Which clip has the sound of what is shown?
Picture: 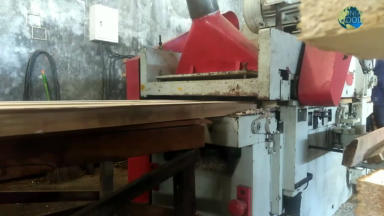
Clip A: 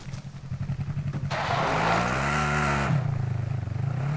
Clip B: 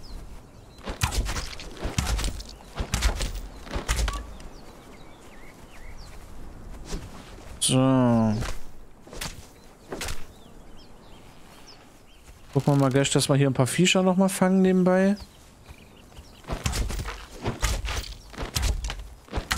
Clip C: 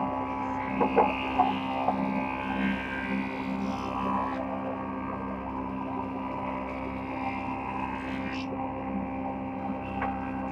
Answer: C